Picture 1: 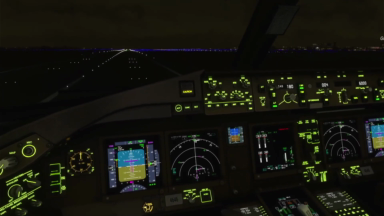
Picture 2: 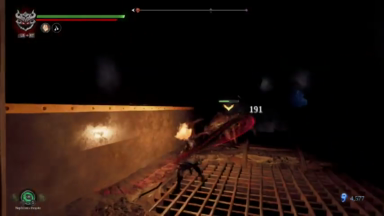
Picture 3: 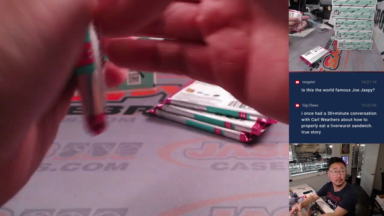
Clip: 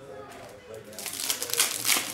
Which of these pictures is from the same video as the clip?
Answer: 3